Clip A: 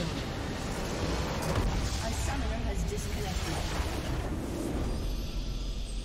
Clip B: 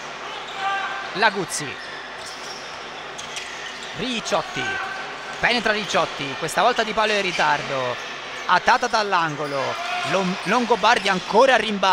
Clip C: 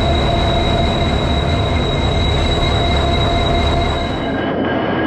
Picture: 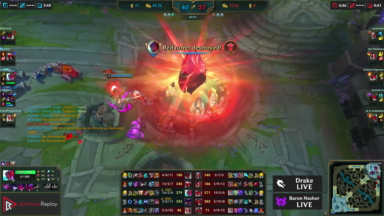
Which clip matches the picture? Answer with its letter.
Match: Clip A